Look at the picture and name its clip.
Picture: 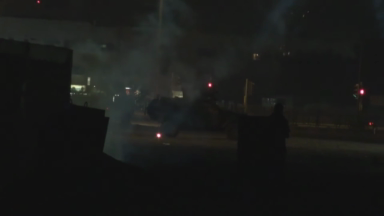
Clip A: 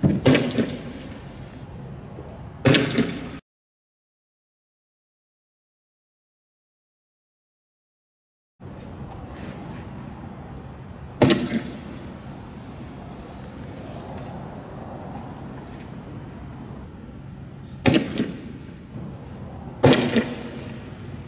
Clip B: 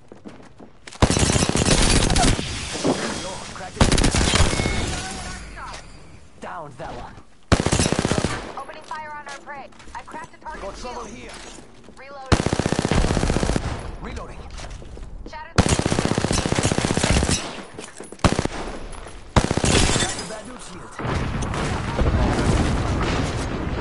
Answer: A